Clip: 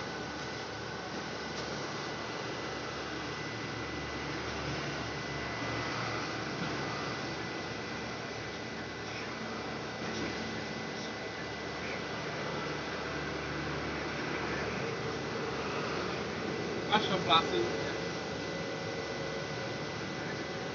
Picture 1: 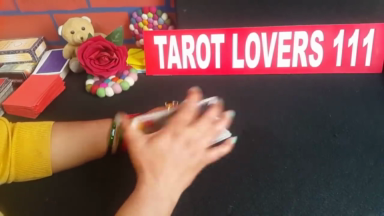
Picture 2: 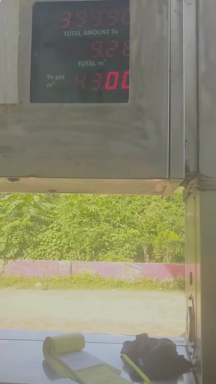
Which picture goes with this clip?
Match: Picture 2